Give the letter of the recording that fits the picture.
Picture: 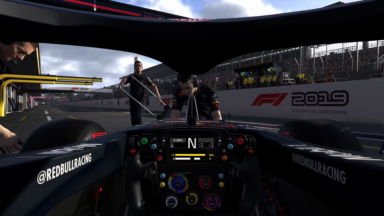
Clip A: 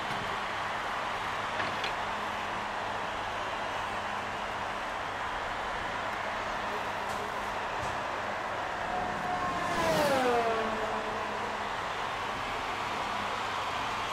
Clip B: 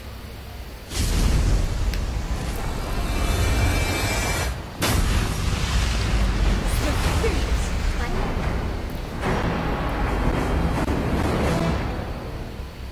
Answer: A